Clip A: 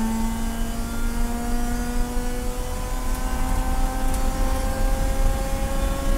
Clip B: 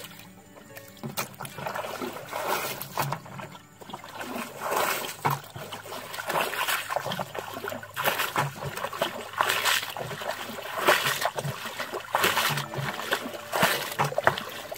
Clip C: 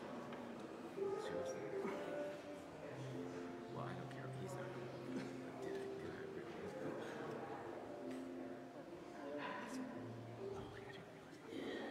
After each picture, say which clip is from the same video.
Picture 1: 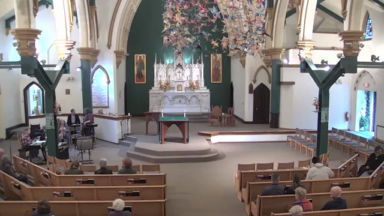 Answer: C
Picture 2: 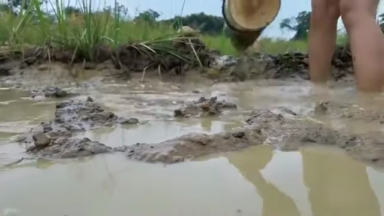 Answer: B